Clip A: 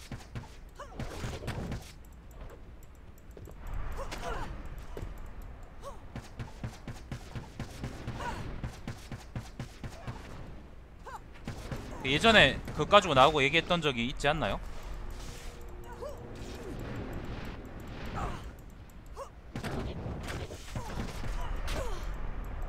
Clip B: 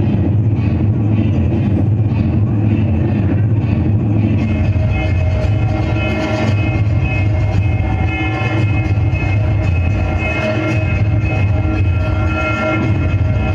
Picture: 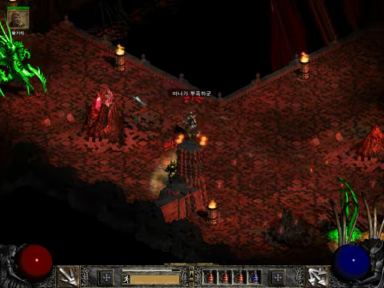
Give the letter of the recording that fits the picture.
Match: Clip A